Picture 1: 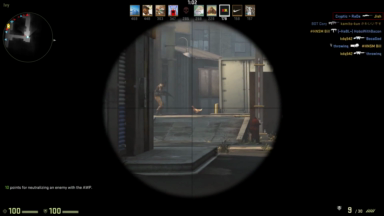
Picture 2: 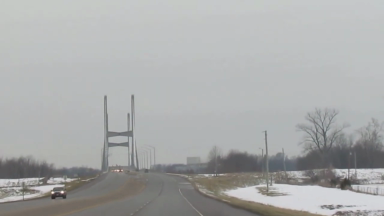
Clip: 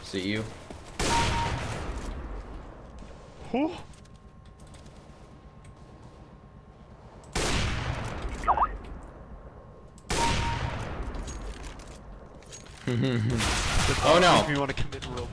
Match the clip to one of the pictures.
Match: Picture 1